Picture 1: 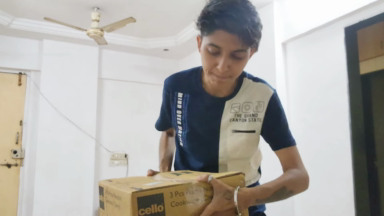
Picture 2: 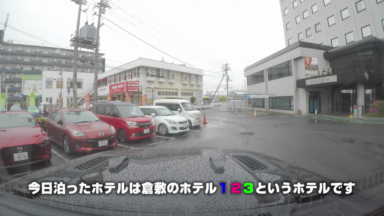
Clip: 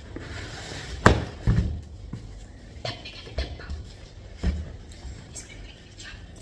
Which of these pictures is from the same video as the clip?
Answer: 1